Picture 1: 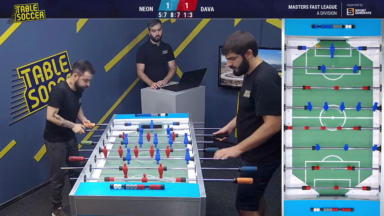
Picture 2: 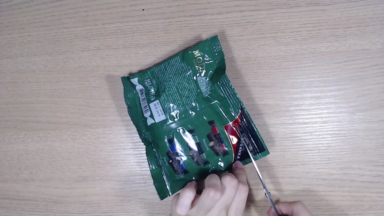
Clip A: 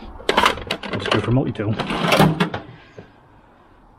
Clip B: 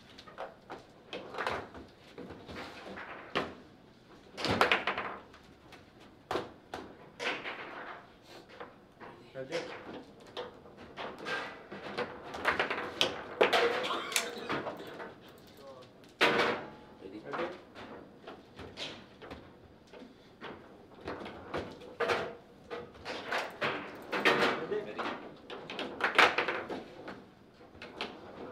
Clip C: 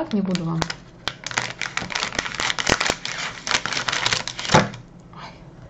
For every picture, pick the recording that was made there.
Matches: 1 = B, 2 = C